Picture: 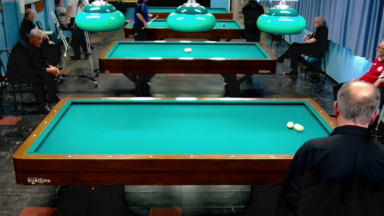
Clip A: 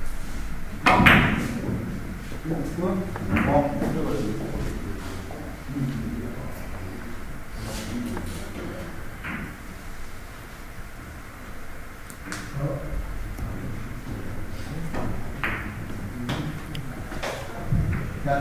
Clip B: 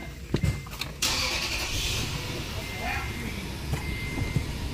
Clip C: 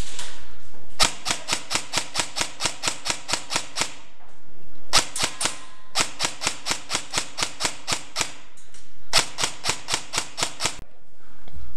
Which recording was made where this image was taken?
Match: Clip A